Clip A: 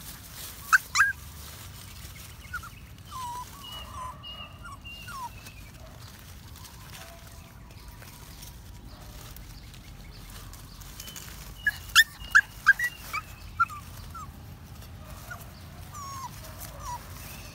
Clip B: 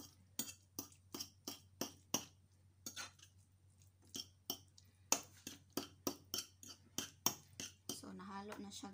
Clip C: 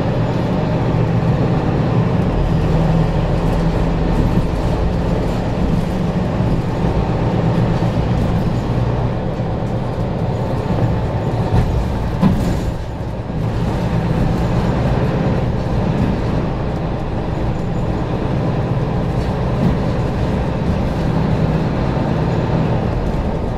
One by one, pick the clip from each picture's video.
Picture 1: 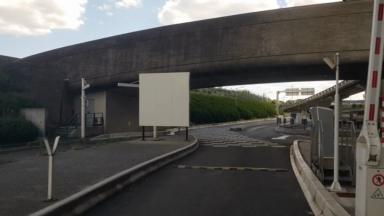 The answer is C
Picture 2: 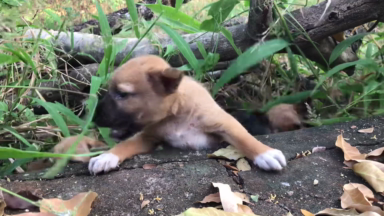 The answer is A